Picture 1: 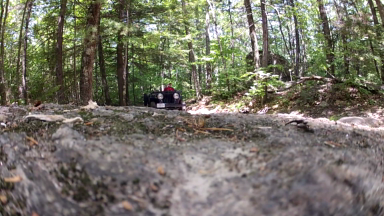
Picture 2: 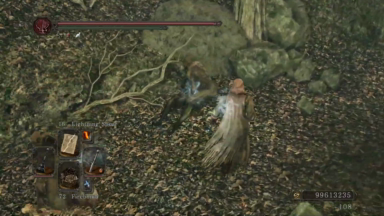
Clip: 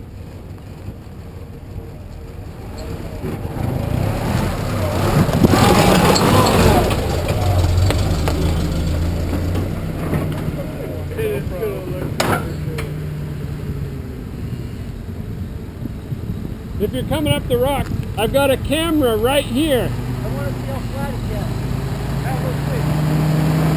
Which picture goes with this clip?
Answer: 1